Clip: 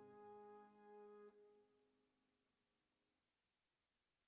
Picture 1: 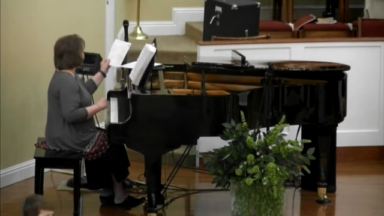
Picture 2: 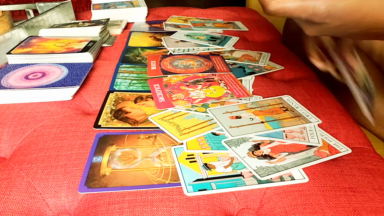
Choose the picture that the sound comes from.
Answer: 1